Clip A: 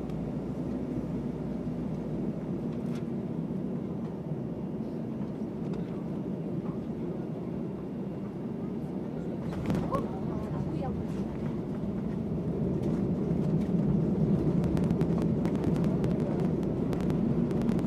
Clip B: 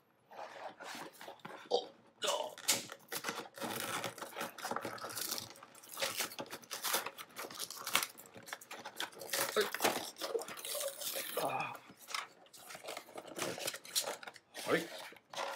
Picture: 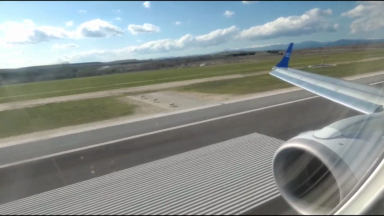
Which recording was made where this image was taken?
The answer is A